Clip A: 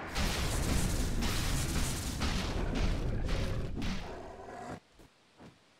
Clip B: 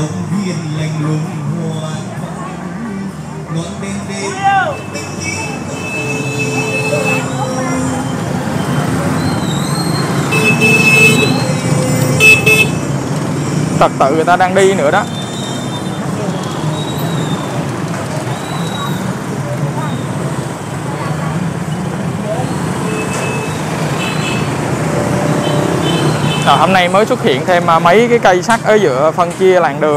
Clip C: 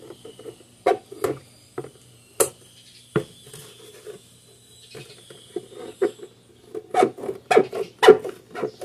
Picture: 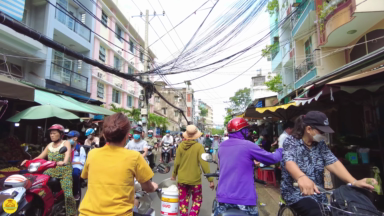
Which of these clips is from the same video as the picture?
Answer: B